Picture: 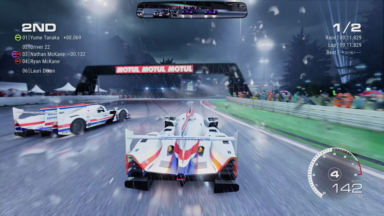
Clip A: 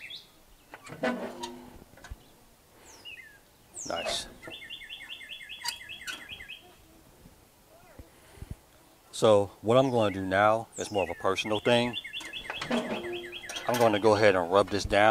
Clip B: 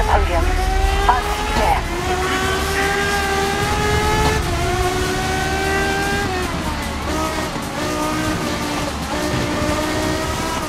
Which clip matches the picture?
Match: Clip B